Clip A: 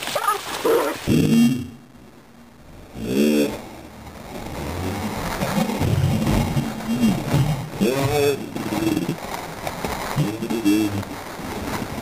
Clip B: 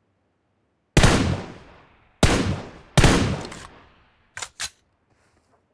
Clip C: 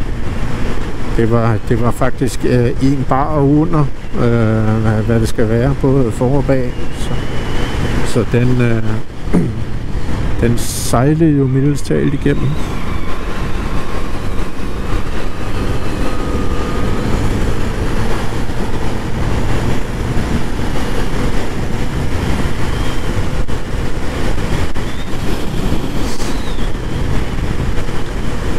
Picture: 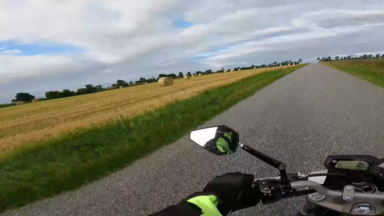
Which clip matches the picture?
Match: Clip C